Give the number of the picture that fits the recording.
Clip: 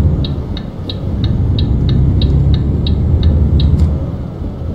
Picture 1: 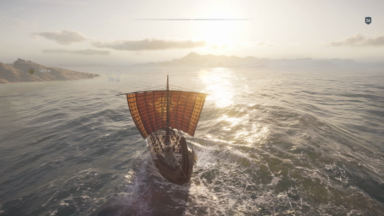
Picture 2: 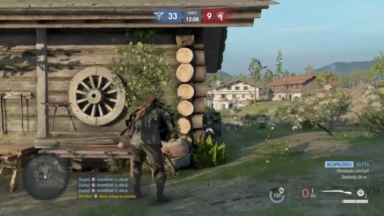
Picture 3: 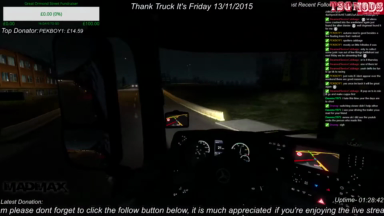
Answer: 3